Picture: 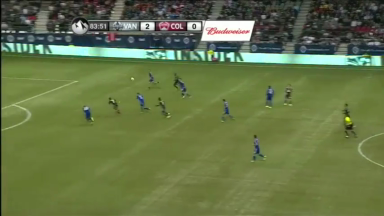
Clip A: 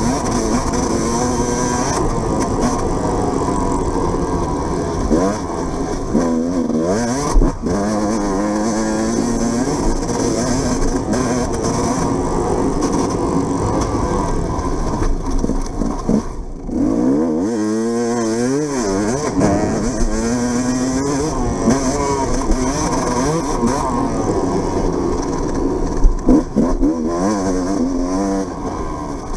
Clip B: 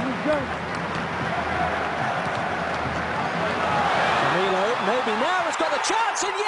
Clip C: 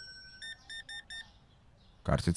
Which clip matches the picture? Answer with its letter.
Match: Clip B